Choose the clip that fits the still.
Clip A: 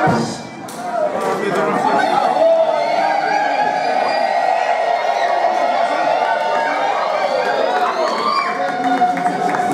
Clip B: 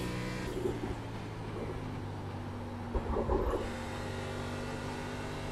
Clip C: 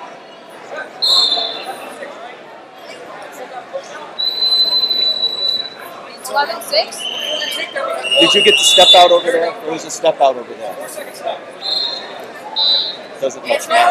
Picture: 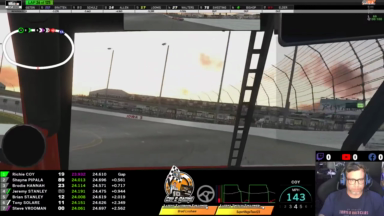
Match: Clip B